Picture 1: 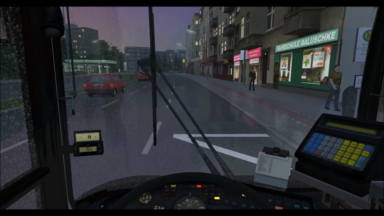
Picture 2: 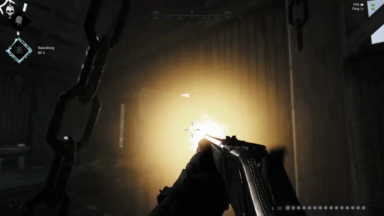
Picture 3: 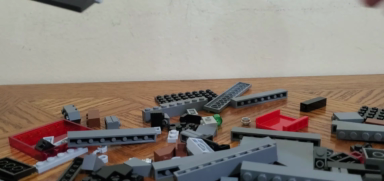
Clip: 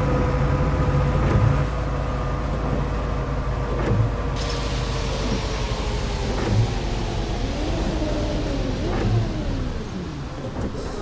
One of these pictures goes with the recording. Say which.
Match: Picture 1